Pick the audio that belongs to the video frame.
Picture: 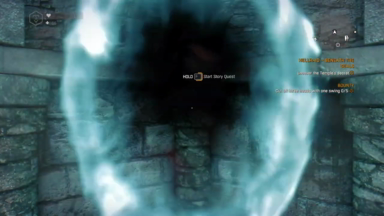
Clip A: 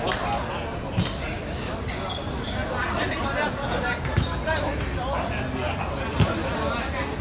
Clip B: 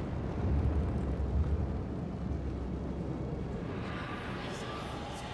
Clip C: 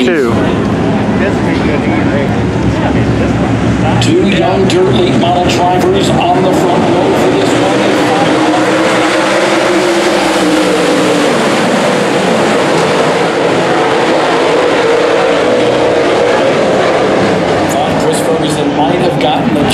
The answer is B